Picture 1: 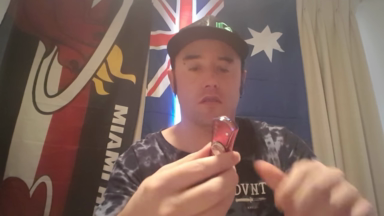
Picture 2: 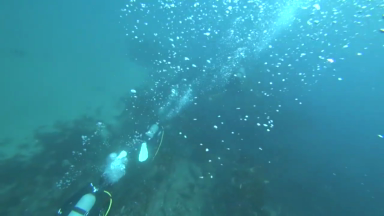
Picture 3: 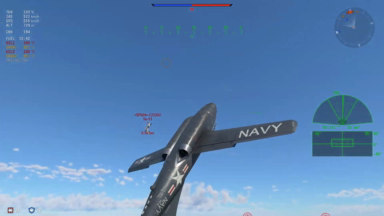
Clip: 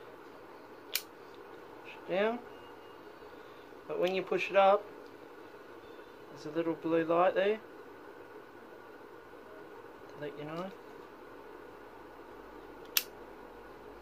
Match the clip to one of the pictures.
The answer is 1